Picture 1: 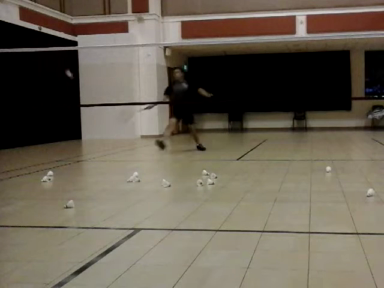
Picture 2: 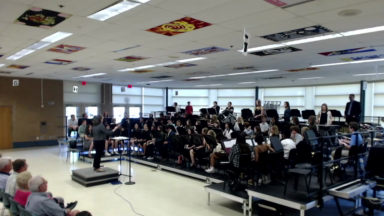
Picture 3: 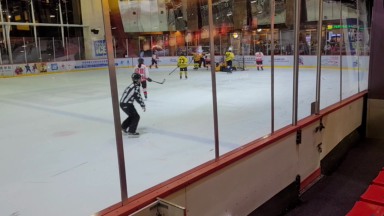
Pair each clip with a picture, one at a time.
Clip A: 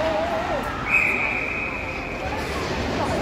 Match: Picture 3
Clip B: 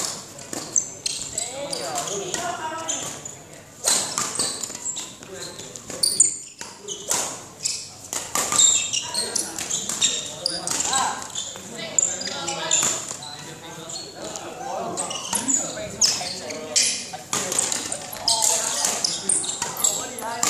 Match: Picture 1